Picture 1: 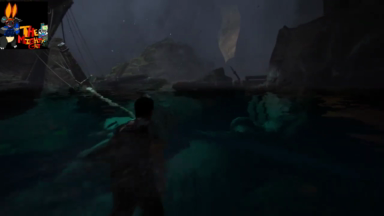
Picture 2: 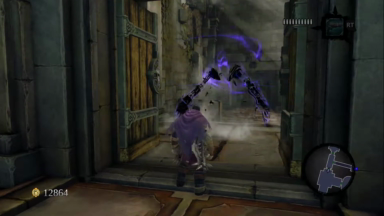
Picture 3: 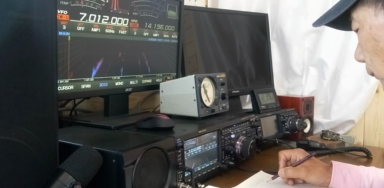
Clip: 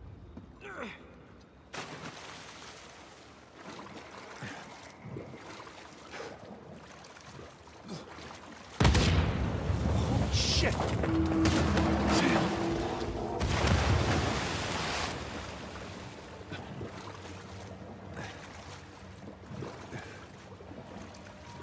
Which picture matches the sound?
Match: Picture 1